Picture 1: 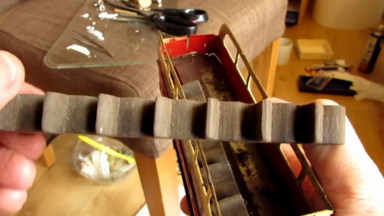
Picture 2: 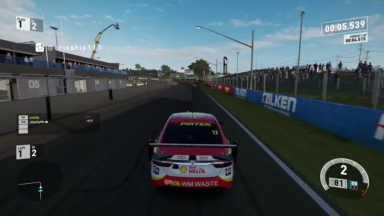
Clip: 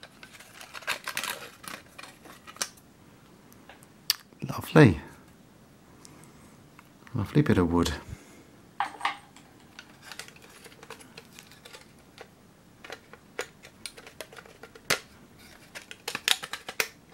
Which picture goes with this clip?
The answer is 1